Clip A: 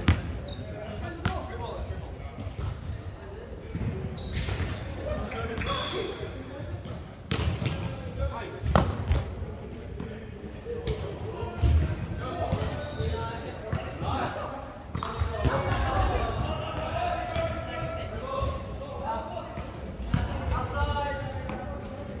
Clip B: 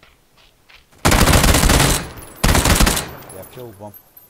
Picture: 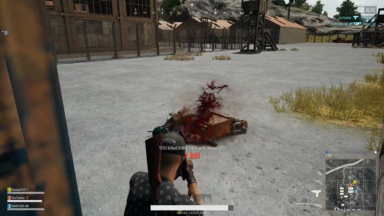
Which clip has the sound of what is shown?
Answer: B